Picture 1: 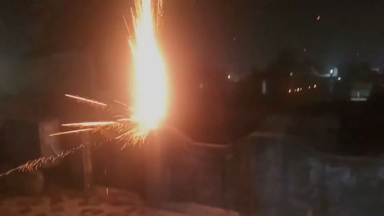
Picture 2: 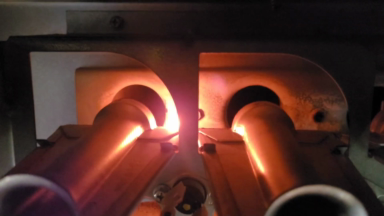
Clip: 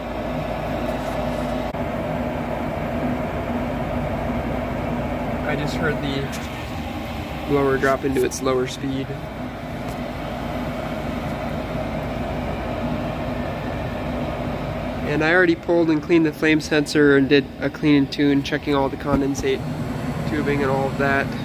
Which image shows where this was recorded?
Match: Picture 2